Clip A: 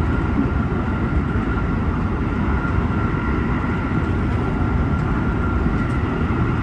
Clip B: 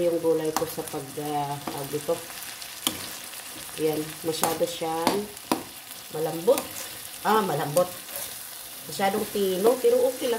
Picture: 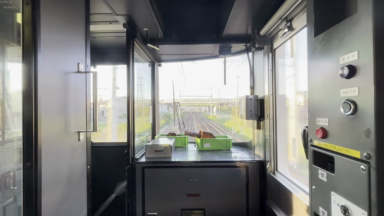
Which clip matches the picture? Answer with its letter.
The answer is A